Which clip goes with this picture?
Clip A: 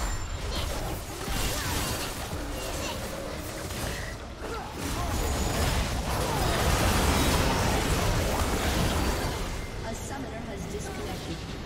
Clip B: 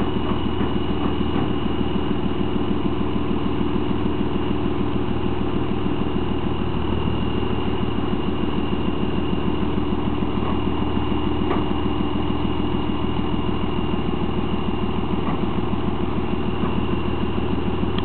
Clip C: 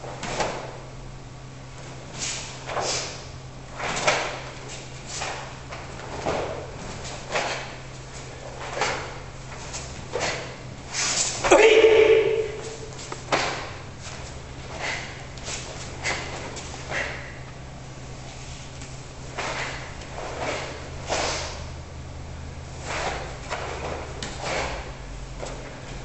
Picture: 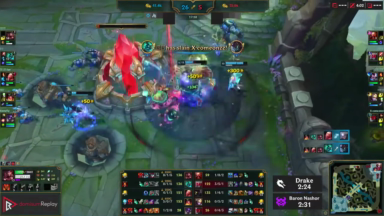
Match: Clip A